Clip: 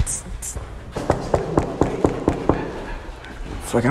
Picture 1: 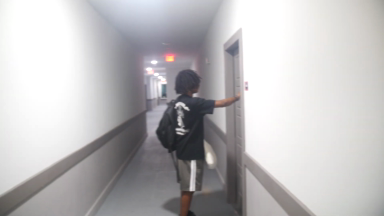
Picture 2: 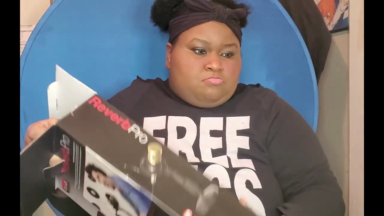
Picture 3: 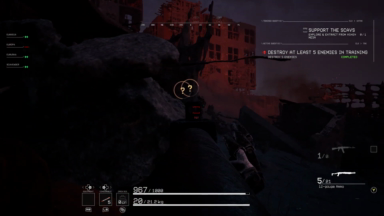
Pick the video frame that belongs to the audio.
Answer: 1